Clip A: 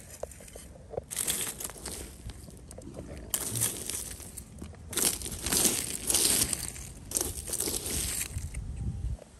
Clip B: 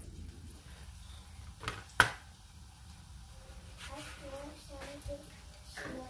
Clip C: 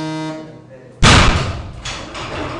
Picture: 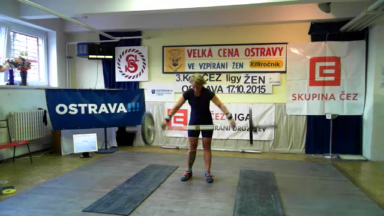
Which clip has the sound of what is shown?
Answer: C